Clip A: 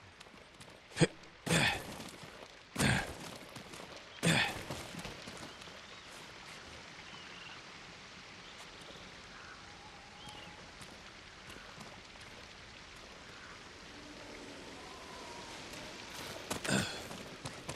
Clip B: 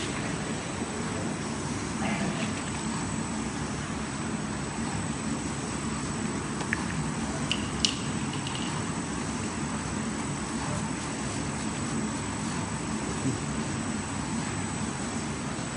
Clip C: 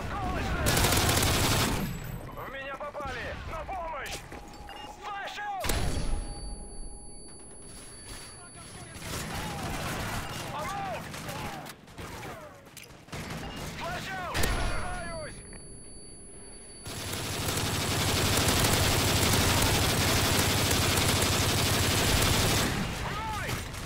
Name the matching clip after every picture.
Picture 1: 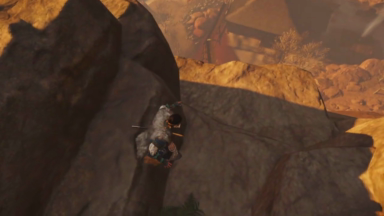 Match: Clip A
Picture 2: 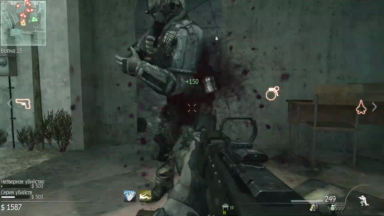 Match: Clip C